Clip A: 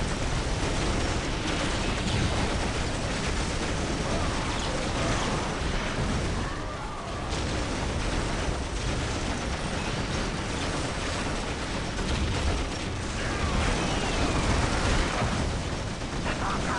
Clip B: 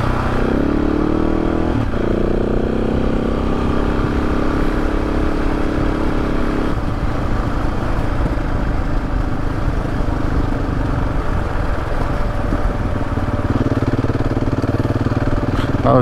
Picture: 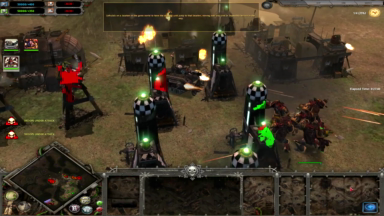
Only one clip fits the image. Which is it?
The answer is A